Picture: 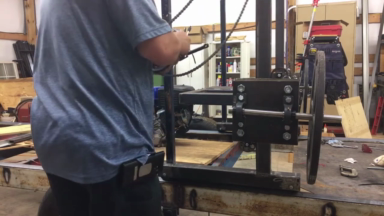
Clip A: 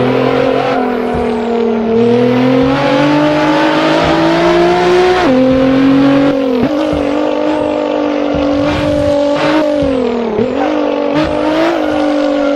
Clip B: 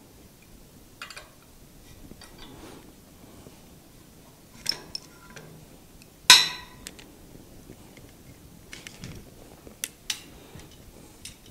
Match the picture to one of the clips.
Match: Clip B